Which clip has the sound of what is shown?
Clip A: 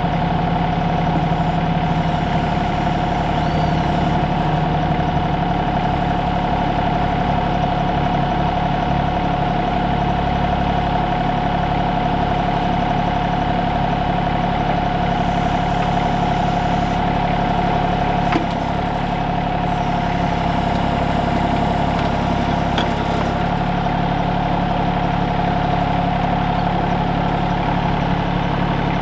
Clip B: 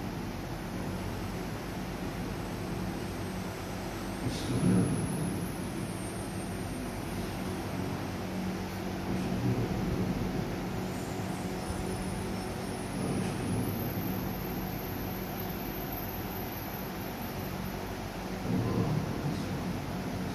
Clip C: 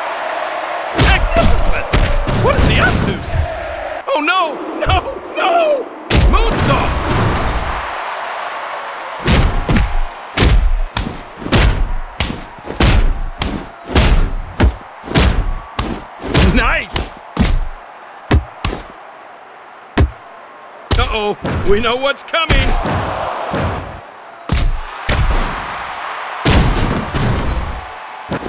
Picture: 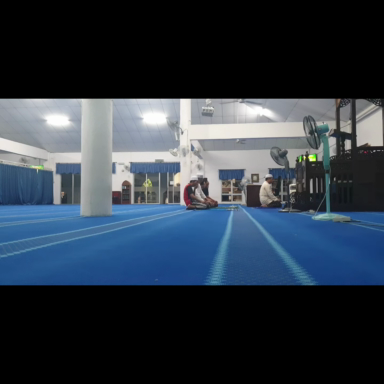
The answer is B